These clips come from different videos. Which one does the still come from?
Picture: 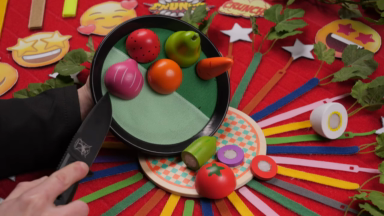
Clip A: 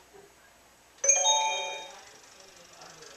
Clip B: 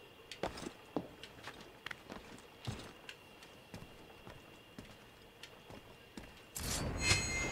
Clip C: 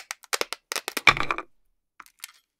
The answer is C